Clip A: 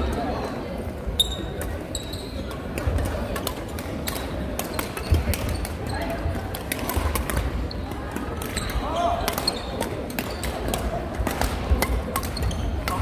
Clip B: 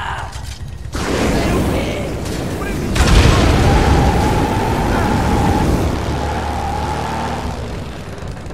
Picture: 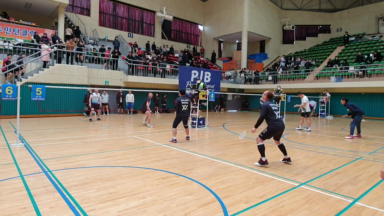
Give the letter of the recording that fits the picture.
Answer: A